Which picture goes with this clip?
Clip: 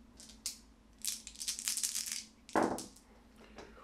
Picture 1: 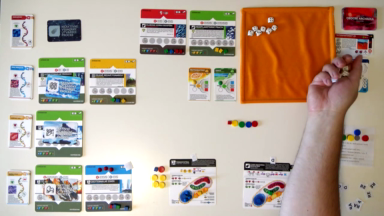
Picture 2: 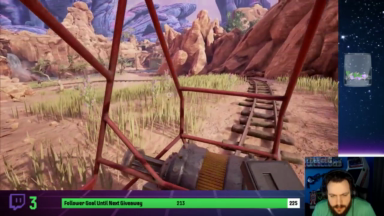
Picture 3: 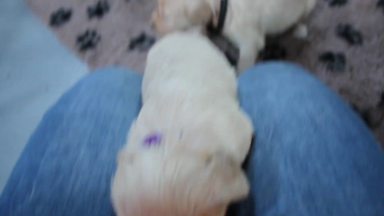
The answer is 1